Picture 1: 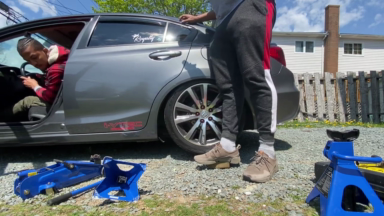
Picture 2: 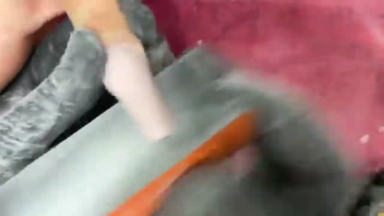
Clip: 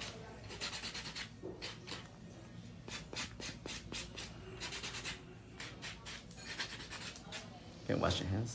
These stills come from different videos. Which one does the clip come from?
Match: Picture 2